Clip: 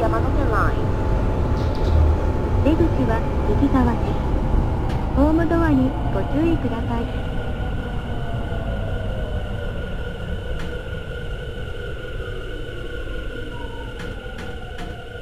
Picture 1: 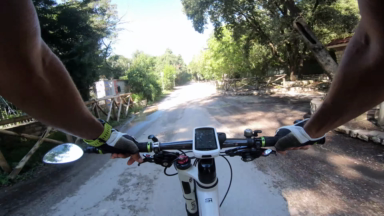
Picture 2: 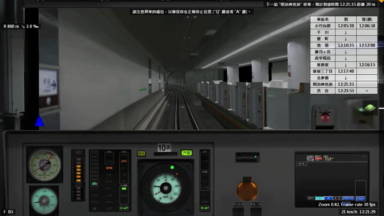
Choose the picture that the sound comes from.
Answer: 2